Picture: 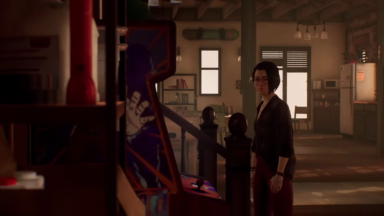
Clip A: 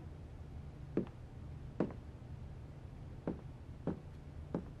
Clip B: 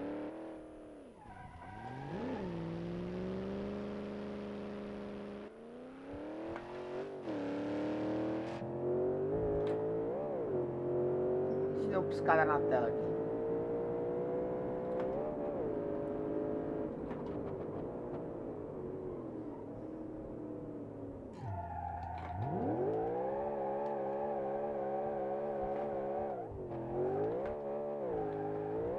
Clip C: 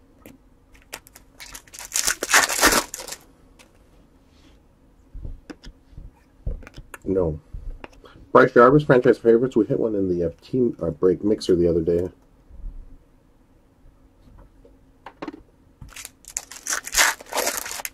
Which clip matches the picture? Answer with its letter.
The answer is A